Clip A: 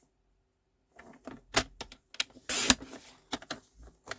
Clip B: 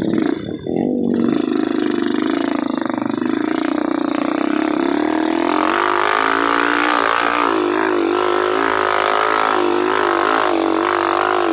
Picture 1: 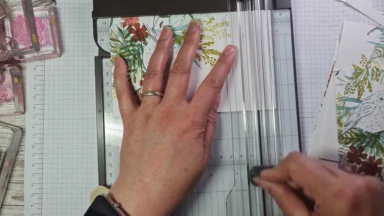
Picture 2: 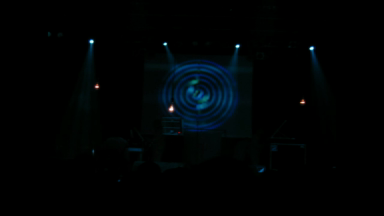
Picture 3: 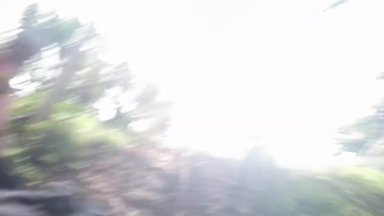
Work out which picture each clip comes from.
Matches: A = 1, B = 3